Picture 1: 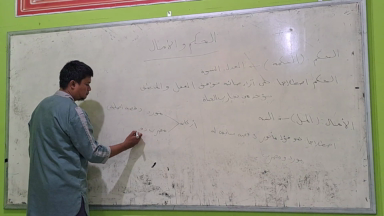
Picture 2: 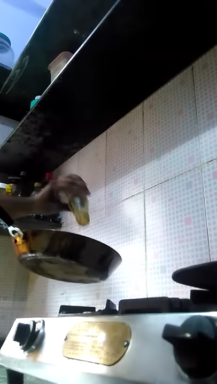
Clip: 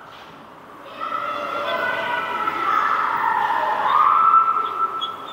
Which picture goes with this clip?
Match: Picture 1